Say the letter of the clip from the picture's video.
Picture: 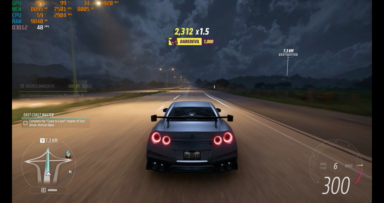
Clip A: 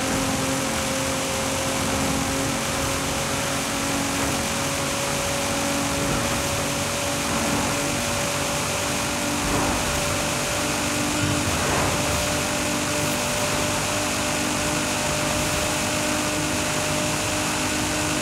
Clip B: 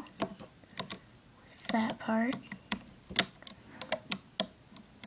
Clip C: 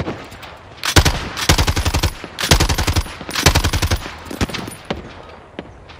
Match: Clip A